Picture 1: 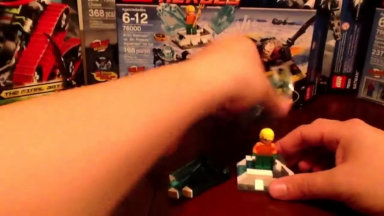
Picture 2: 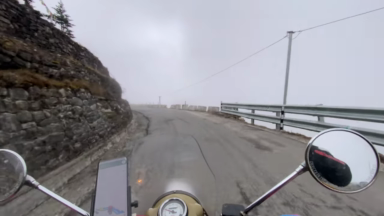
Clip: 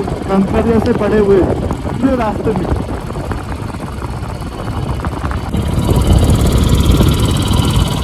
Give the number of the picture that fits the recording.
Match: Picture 2